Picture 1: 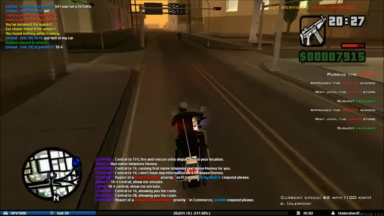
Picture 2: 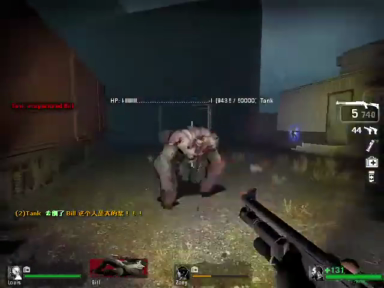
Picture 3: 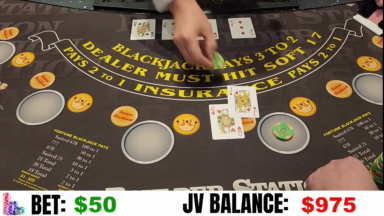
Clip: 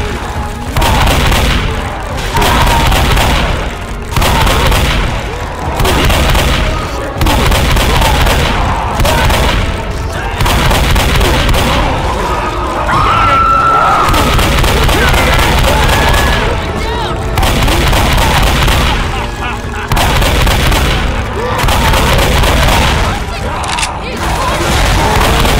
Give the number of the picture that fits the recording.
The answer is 2